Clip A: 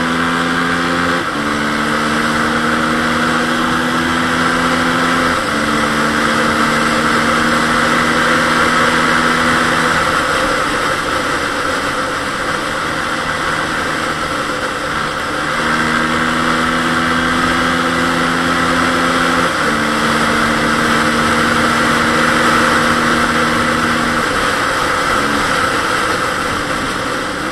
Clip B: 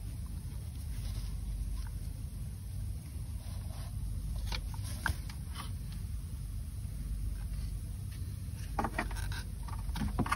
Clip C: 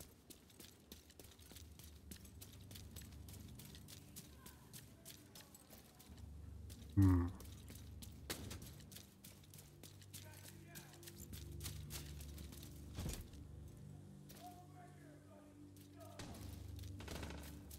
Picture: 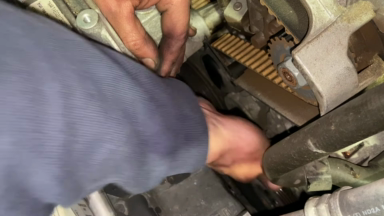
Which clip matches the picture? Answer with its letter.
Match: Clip B